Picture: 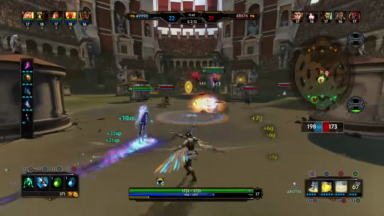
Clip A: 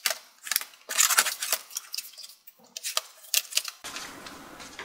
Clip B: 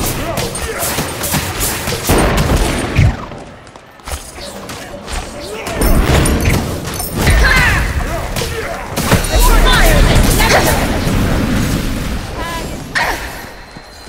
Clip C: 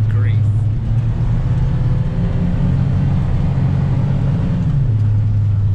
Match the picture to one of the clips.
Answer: B